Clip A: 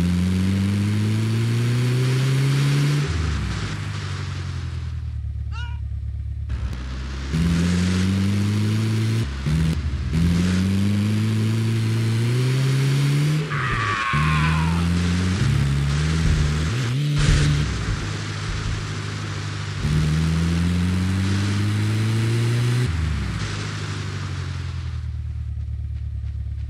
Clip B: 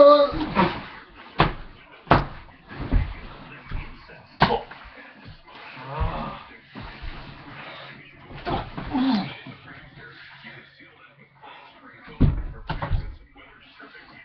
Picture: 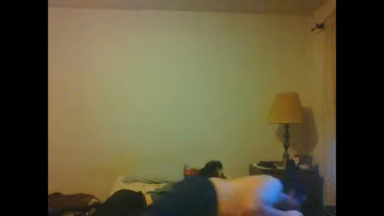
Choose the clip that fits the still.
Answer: B